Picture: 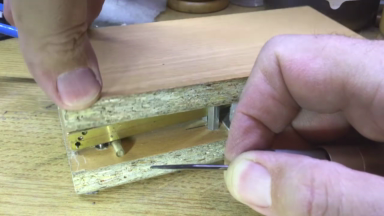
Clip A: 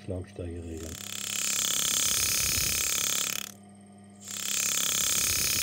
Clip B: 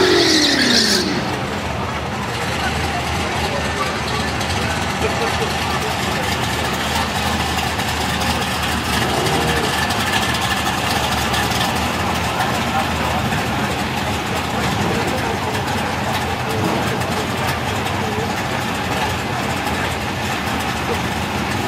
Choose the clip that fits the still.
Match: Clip A